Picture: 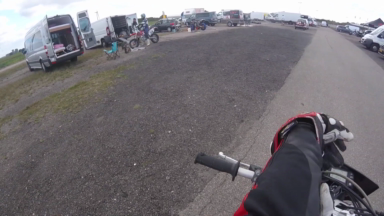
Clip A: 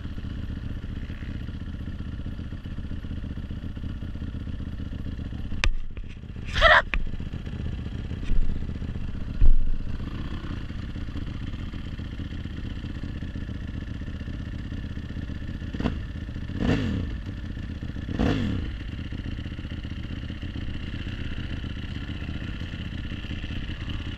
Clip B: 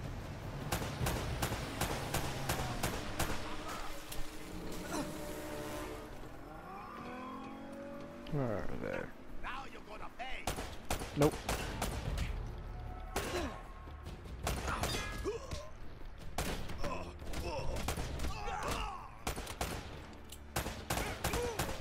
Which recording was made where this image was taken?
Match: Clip A